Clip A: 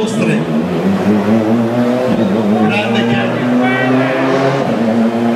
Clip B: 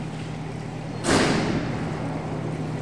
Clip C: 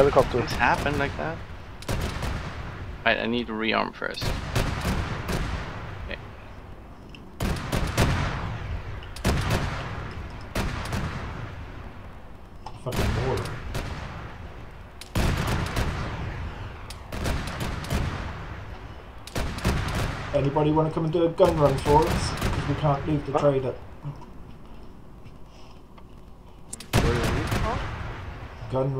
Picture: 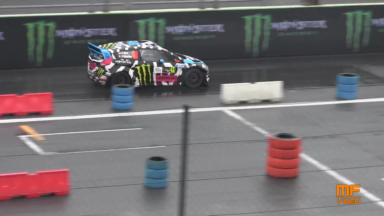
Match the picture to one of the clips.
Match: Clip A